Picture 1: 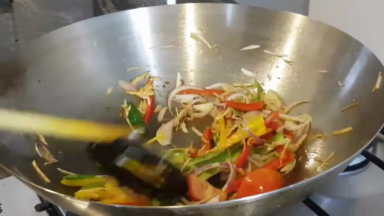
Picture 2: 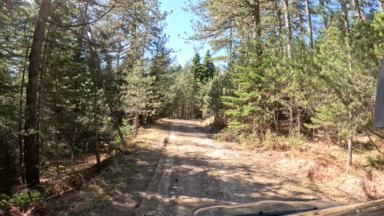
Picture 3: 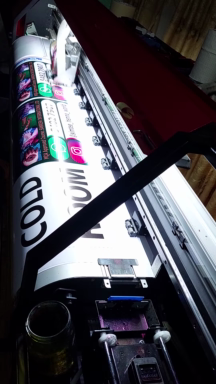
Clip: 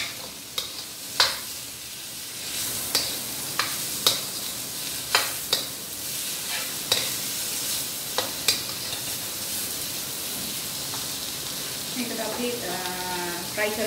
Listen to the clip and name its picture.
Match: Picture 1